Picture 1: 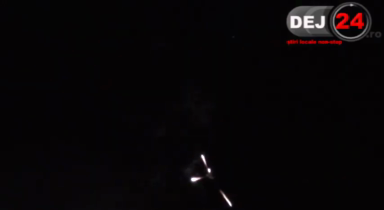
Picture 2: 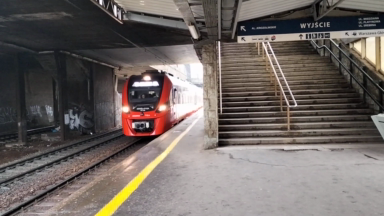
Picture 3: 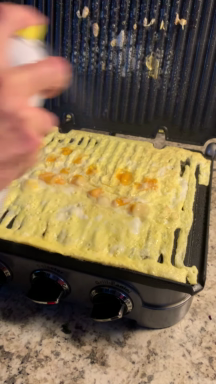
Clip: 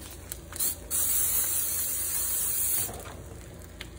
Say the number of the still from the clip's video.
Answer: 3